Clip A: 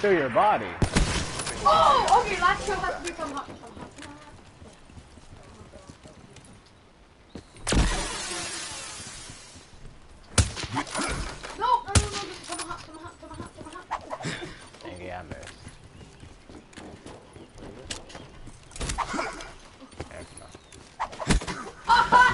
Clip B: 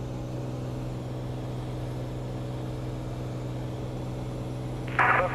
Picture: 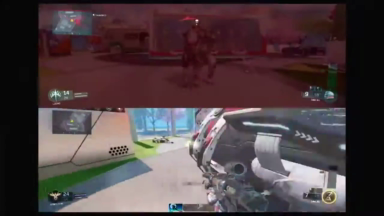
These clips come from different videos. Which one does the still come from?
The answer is A